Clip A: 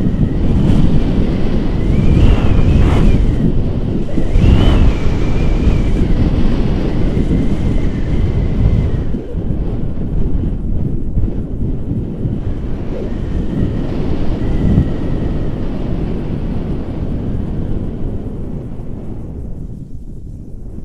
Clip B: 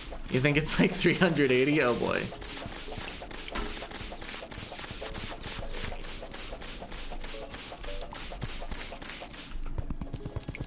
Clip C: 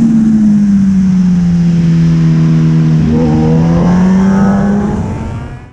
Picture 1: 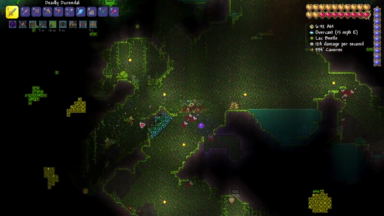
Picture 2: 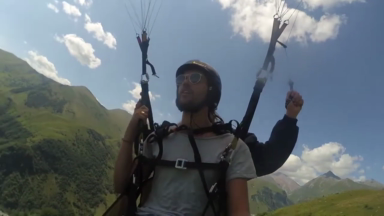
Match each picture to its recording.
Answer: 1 B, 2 A